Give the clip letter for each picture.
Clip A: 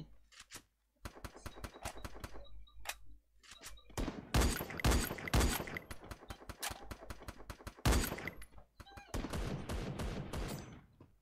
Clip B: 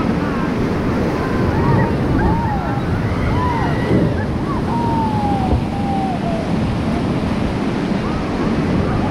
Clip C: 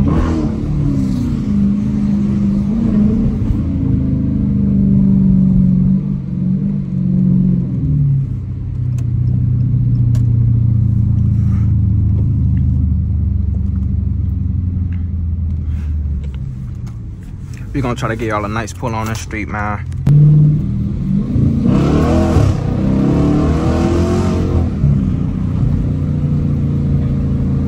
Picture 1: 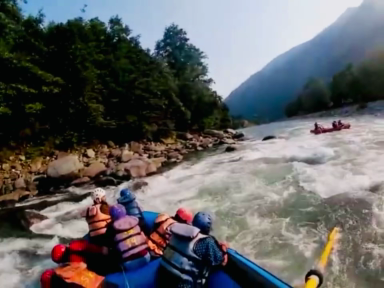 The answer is B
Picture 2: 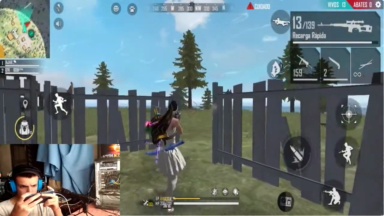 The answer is A